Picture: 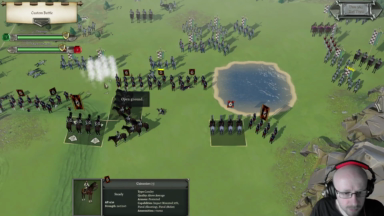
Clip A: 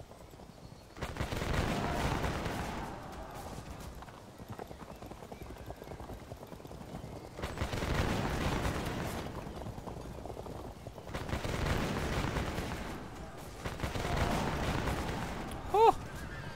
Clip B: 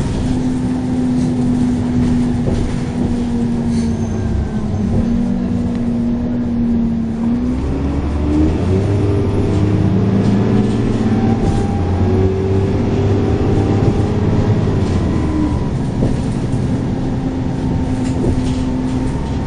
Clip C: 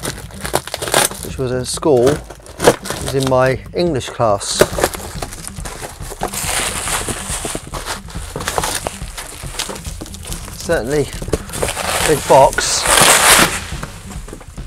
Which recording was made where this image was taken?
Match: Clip A